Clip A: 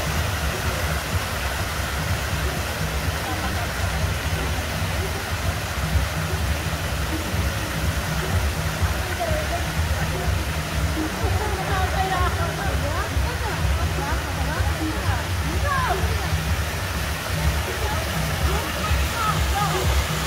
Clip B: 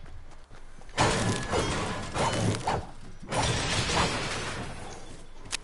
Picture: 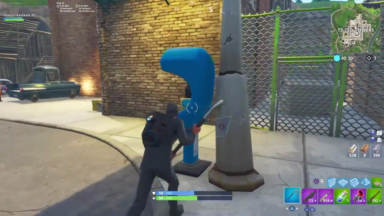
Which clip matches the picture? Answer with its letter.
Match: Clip B